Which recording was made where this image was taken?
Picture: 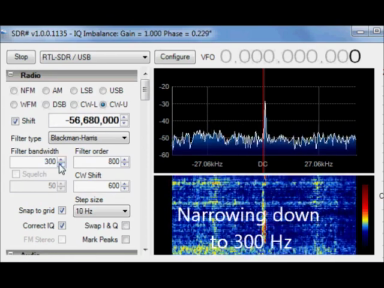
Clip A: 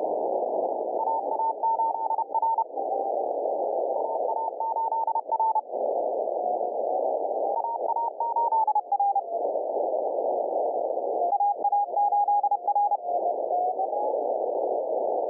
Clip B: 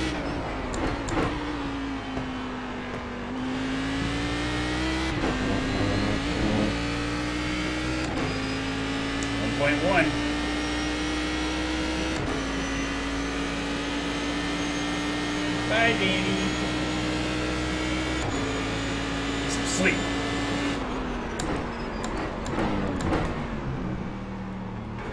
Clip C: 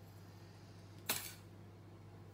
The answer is A